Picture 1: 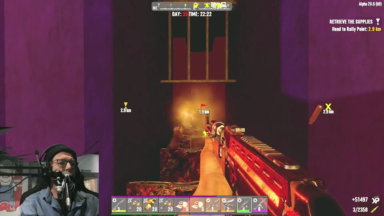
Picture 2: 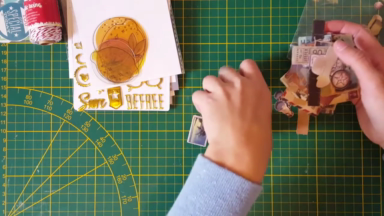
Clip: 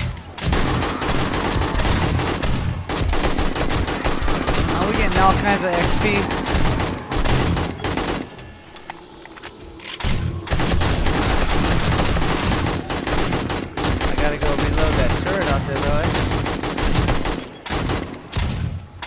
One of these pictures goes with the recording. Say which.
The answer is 1